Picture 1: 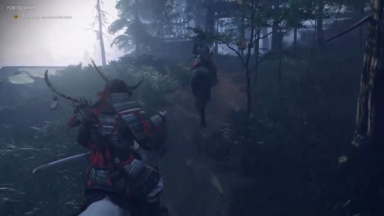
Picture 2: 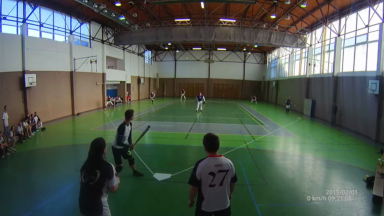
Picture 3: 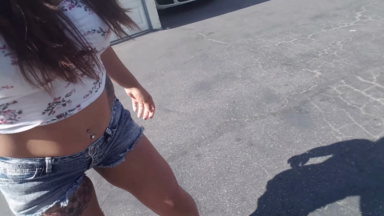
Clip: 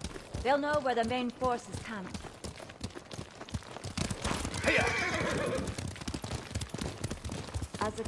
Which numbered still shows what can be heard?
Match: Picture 1